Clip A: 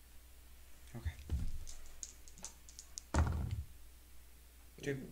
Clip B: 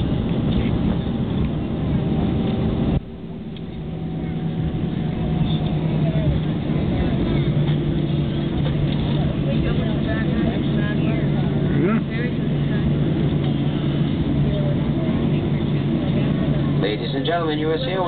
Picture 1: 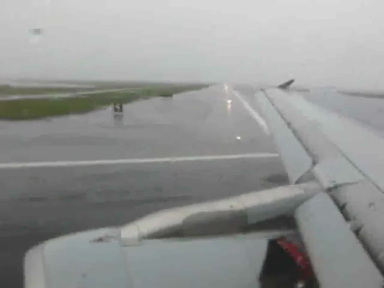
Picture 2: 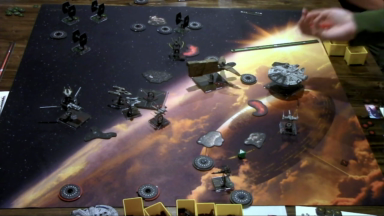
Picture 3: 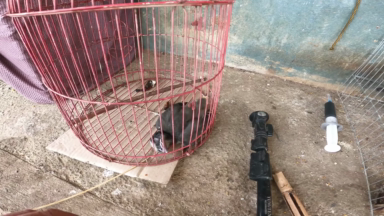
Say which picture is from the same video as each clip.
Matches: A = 2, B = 1